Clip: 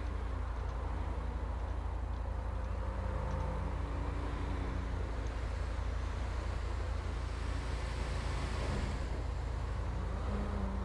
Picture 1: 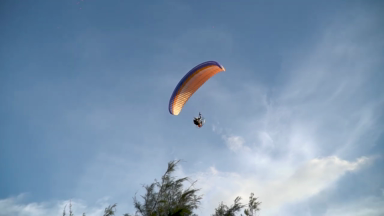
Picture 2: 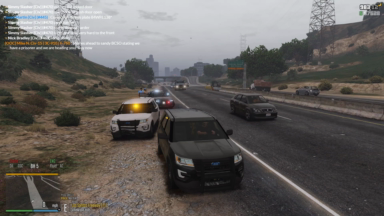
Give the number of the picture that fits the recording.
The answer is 2